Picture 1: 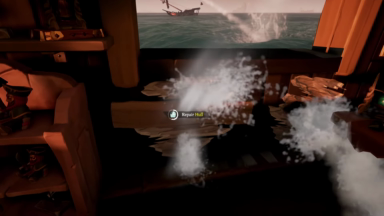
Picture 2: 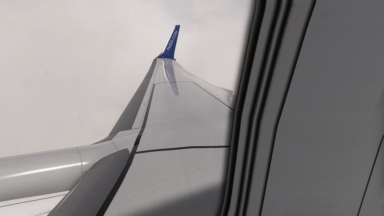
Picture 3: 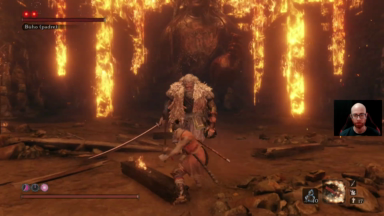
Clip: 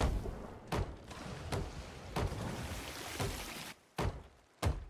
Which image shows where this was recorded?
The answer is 1